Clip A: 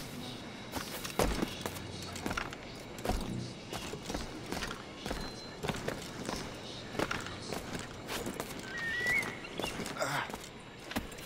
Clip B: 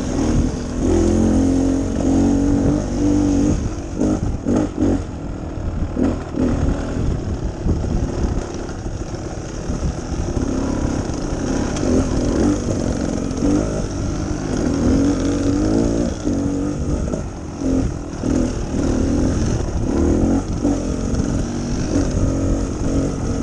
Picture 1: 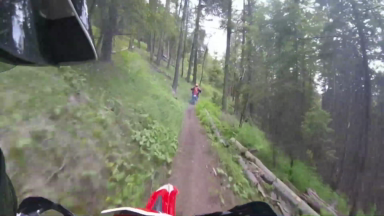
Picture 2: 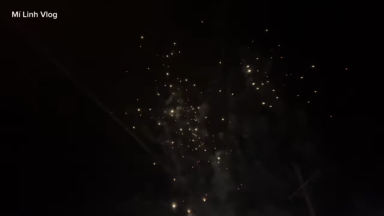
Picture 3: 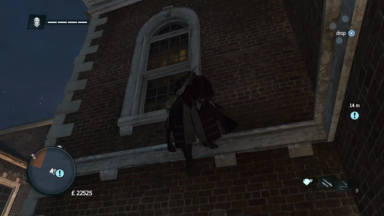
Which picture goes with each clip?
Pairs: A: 3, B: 1